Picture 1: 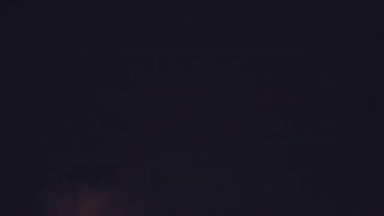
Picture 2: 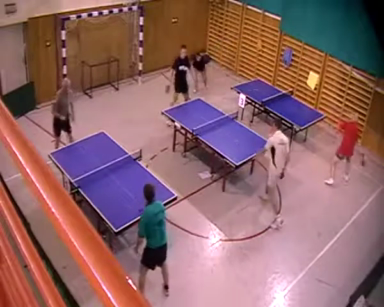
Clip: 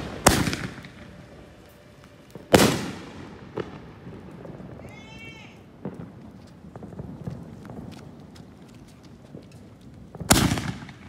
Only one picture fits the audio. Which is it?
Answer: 1